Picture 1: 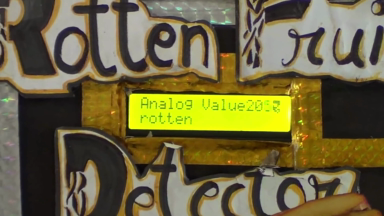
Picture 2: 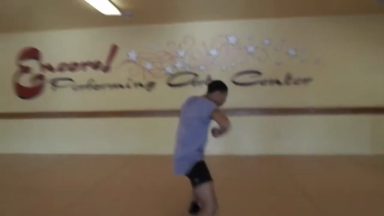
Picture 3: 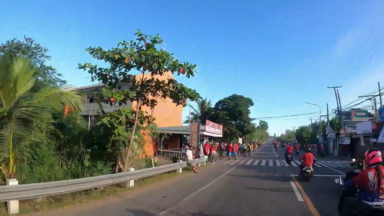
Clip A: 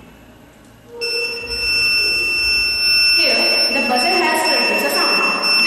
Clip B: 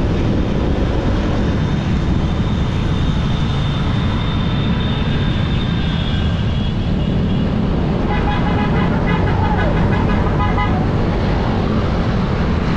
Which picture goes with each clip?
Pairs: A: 1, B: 3